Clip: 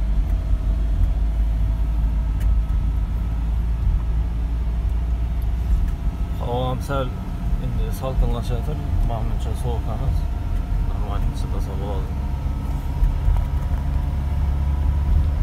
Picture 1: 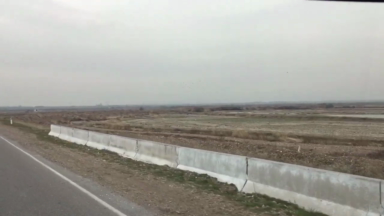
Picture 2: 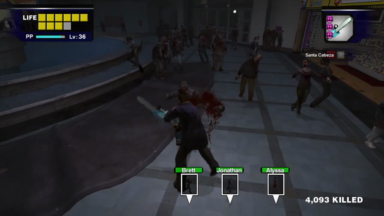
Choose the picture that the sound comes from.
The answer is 1